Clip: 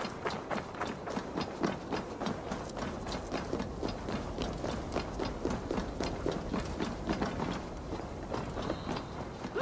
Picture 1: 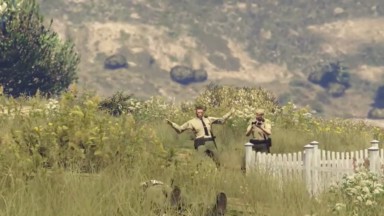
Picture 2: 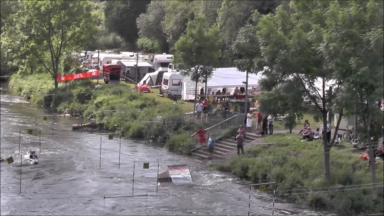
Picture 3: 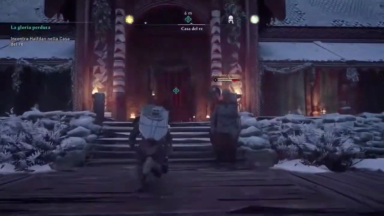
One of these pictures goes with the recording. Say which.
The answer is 3